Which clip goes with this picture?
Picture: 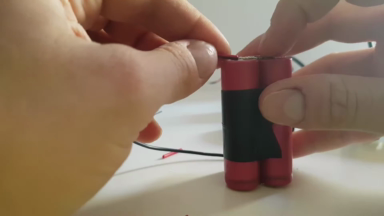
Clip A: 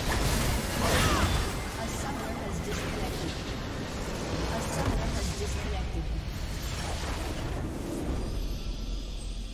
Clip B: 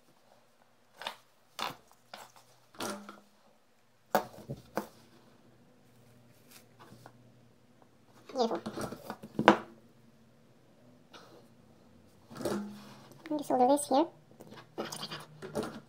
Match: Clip B